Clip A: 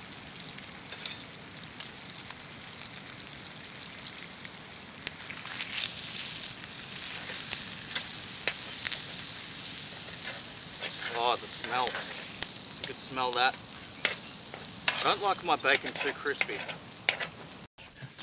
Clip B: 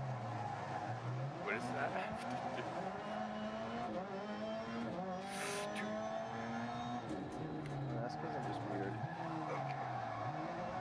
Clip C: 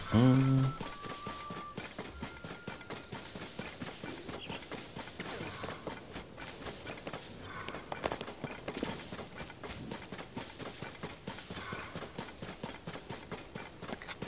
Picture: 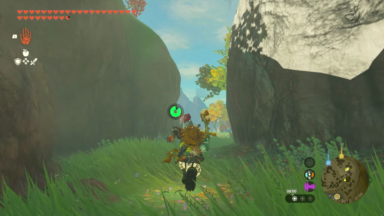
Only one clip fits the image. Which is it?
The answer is C